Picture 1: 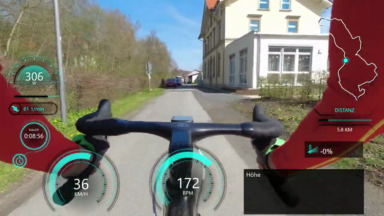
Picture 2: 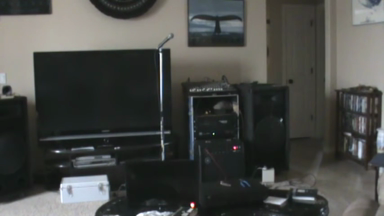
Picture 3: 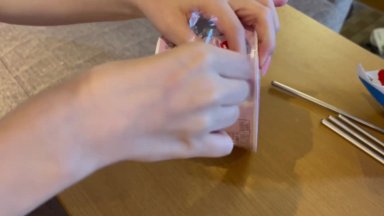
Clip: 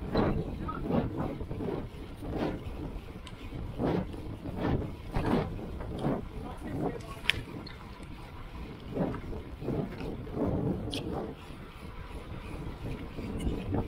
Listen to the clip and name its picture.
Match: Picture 1